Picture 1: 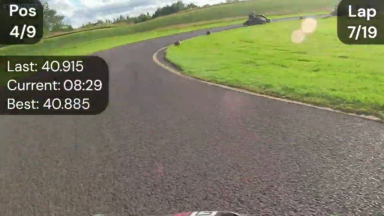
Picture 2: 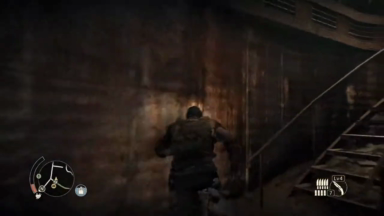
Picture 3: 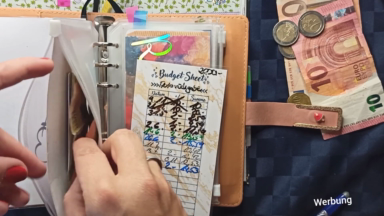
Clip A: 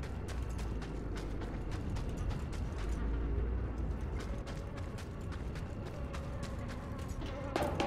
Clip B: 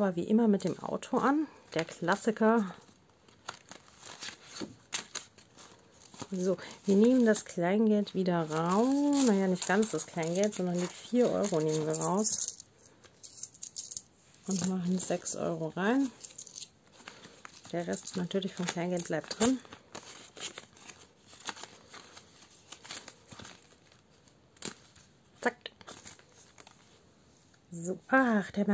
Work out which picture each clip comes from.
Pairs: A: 2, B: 3